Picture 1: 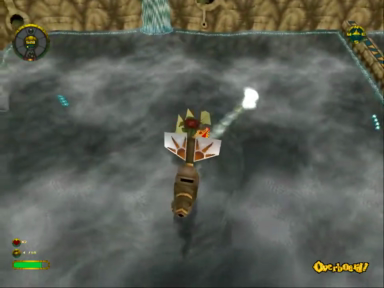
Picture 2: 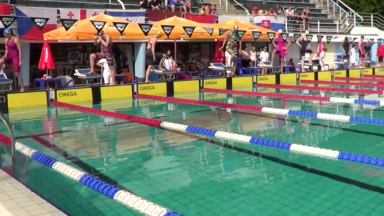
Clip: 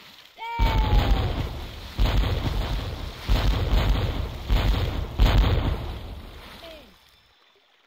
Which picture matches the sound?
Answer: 1